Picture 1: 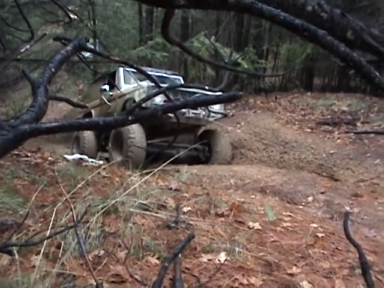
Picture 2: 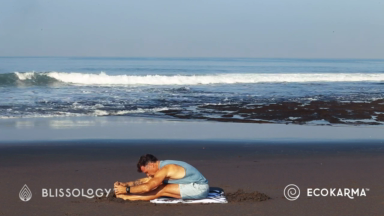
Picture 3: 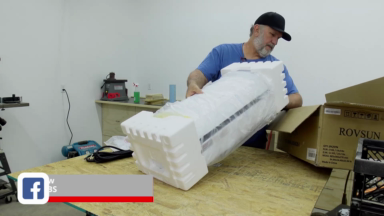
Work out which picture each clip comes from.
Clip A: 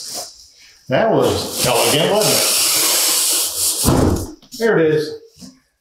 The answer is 3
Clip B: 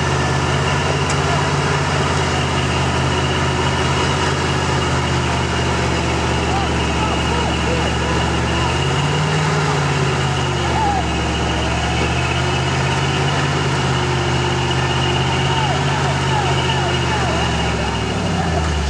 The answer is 1